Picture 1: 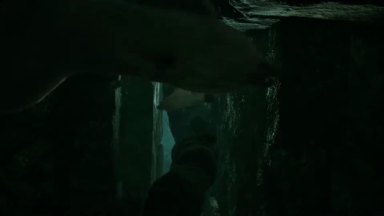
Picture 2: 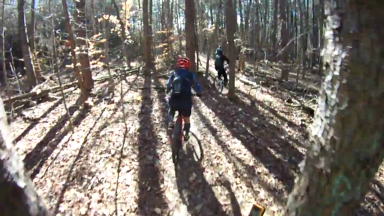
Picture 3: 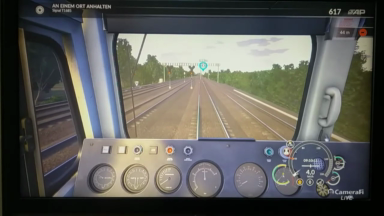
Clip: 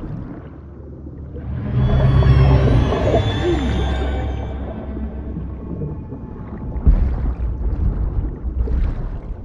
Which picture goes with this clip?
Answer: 1